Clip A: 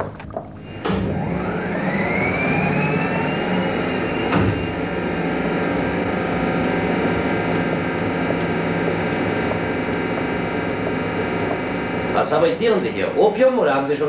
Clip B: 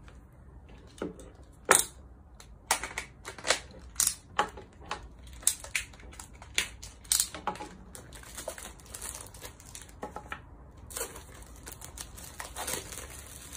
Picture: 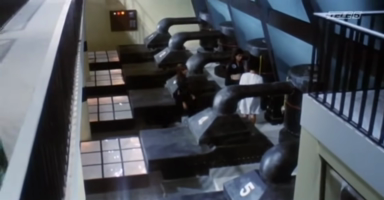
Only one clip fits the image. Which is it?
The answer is A